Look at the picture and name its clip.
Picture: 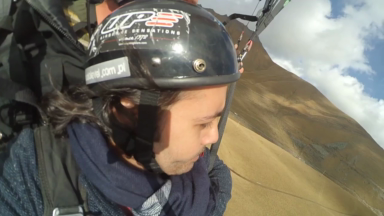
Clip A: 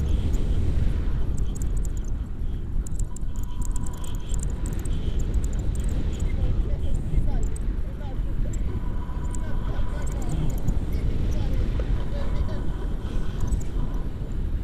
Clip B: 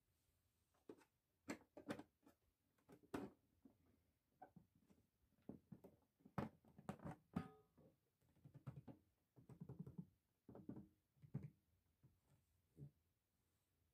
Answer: A